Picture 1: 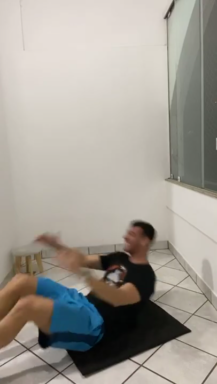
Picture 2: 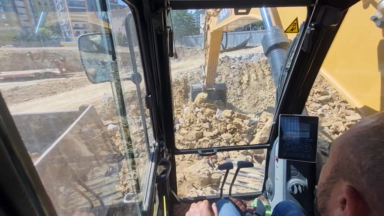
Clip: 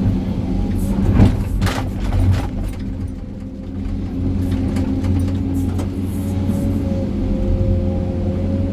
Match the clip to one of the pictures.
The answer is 2